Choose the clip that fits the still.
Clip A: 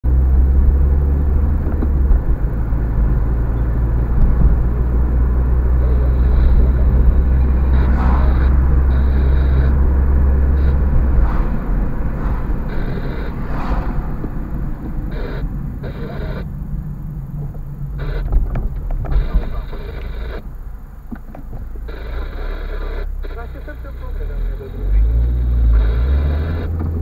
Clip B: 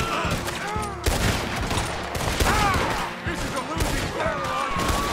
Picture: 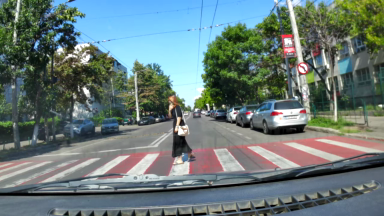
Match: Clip A